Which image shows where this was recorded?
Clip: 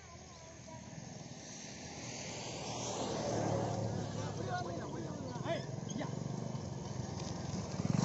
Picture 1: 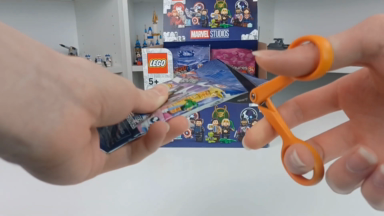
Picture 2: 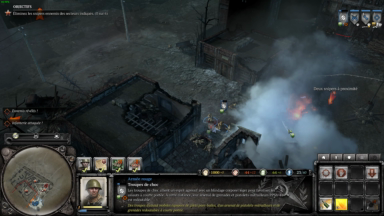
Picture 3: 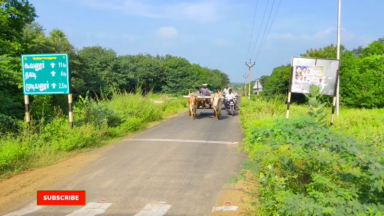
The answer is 3